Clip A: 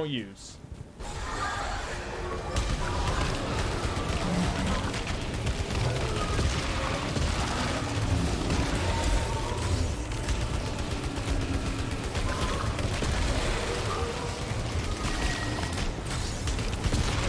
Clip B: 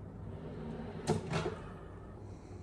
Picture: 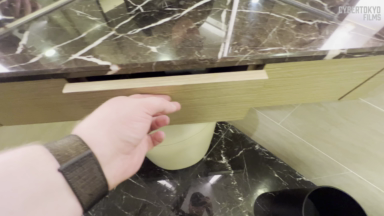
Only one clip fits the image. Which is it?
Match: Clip B